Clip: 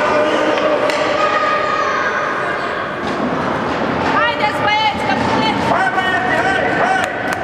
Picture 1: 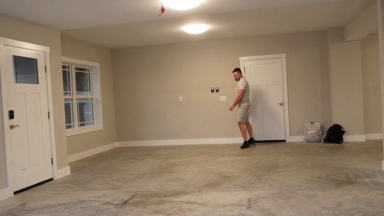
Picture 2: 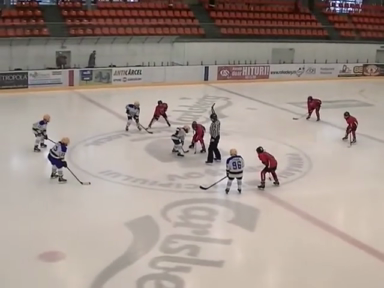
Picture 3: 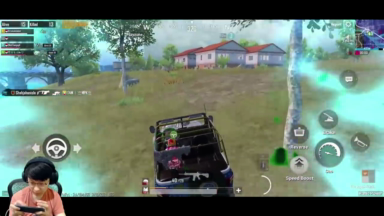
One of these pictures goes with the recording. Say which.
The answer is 2